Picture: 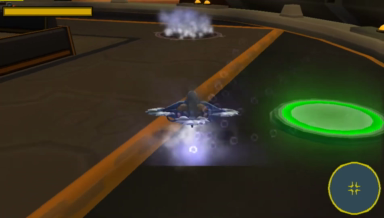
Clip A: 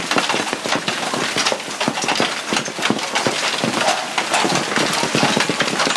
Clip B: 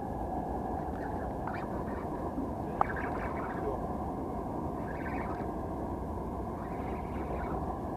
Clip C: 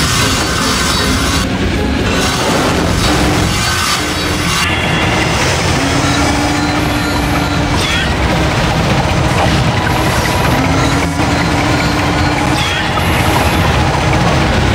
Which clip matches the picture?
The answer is C